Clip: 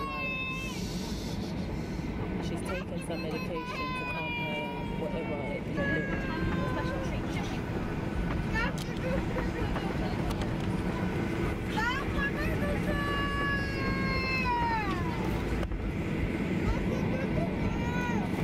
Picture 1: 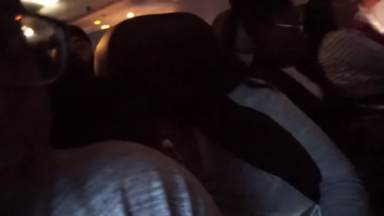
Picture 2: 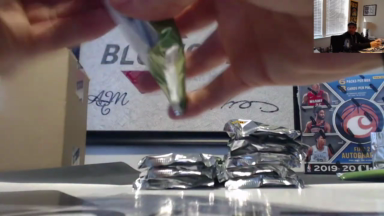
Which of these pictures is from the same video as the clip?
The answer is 1